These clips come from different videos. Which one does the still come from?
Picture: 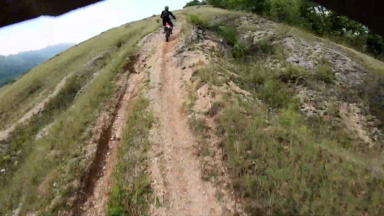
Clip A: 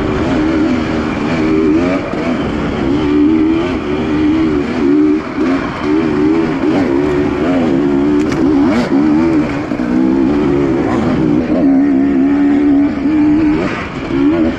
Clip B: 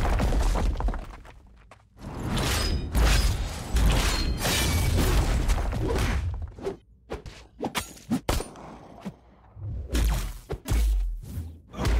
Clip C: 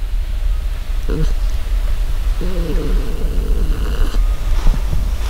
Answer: A